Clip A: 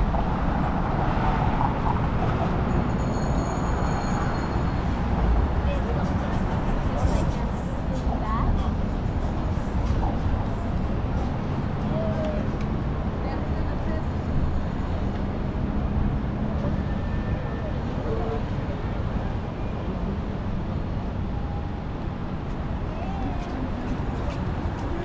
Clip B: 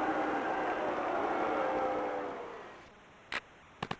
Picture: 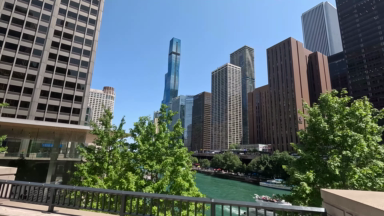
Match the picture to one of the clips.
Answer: A